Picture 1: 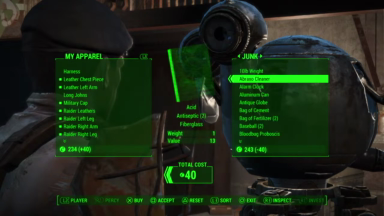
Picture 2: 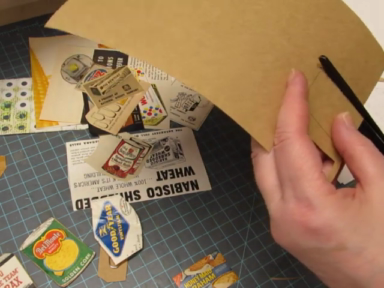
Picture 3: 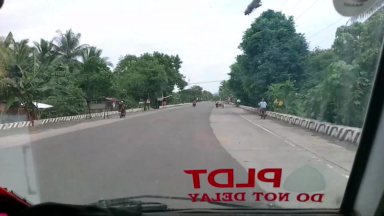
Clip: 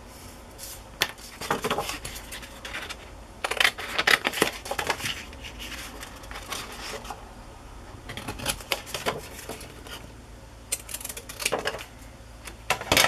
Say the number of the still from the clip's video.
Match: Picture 2